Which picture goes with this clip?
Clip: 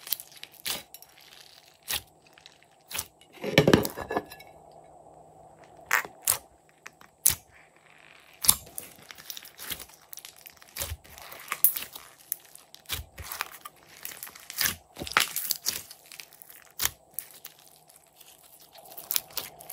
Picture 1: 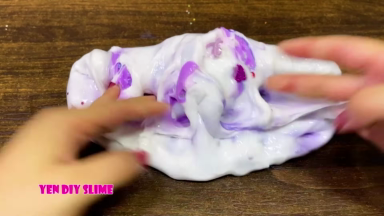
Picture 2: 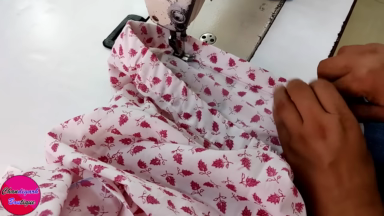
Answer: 1